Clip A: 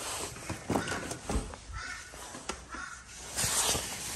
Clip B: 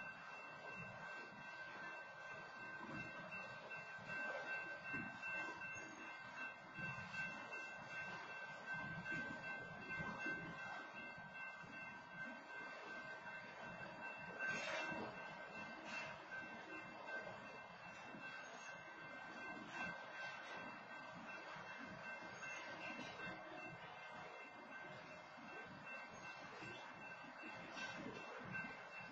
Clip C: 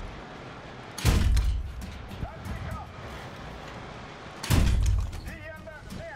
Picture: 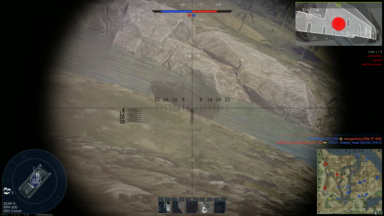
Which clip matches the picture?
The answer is C